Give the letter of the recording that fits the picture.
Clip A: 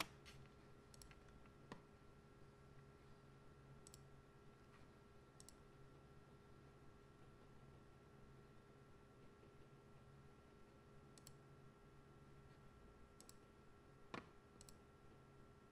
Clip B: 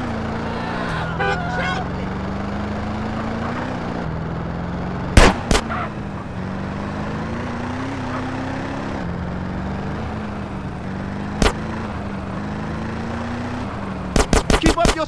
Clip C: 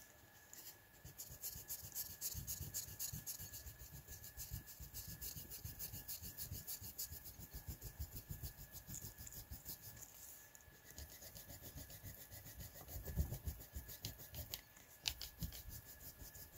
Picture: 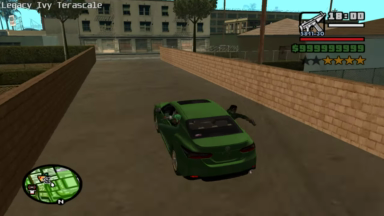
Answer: B